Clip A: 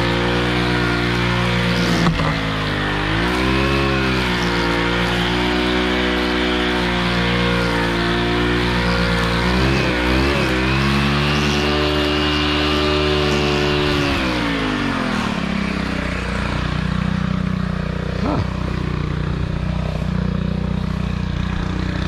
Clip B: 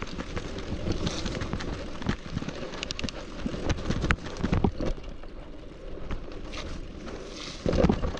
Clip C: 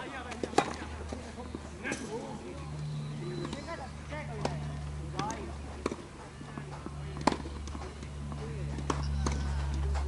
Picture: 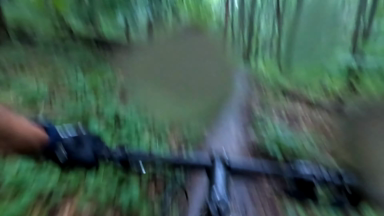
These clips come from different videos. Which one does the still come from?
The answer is B